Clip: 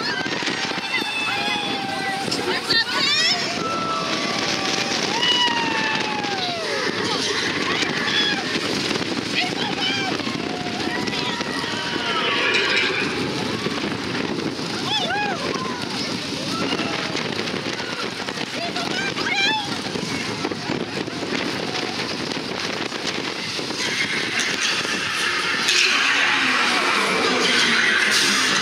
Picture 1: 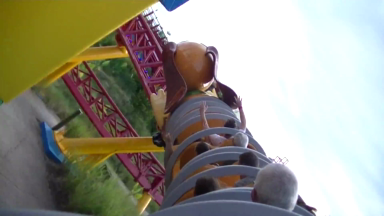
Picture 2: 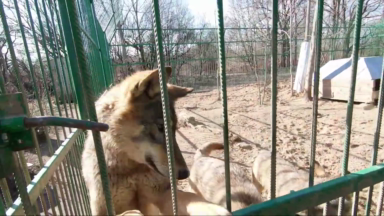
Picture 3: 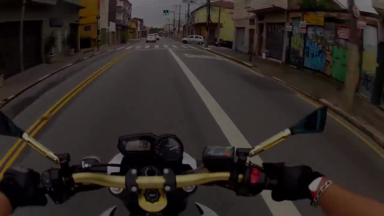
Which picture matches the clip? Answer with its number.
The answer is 1